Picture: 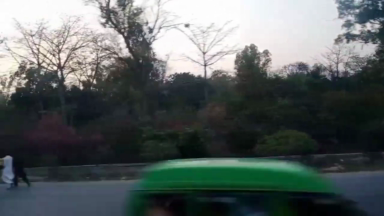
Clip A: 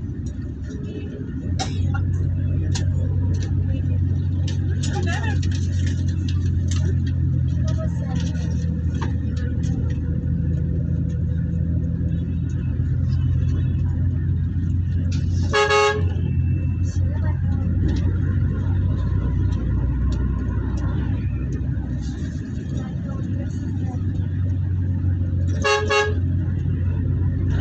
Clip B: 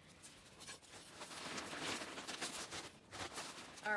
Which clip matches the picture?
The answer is A